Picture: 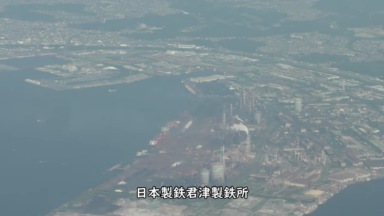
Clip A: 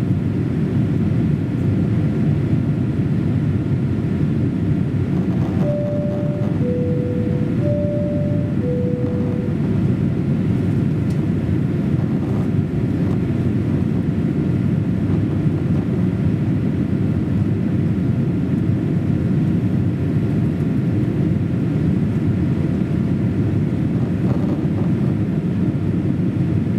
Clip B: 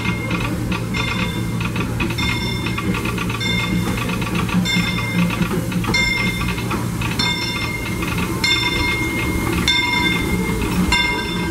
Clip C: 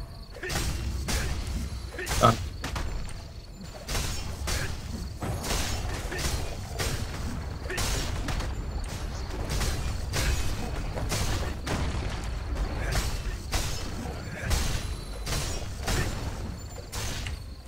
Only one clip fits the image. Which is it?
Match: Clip A